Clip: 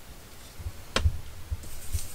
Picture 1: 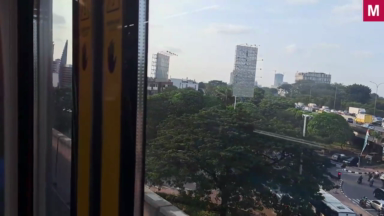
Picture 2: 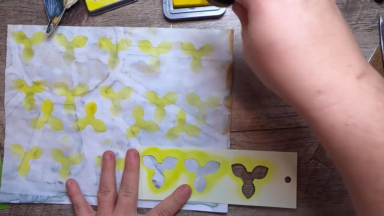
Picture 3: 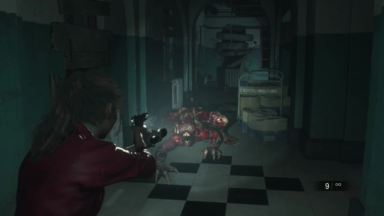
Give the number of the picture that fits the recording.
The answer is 2